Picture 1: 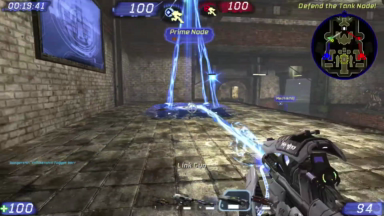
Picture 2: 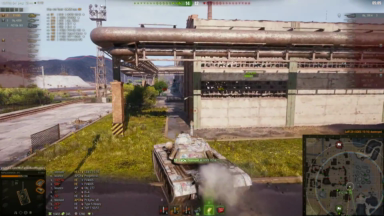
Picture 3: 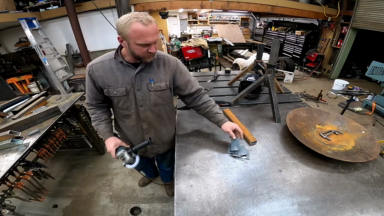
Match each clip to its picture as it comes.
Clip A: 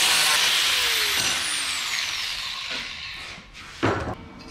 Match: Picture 3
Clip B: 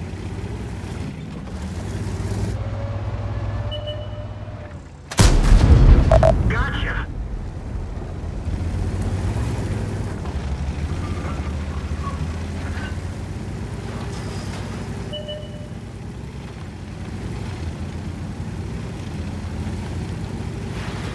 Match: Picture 2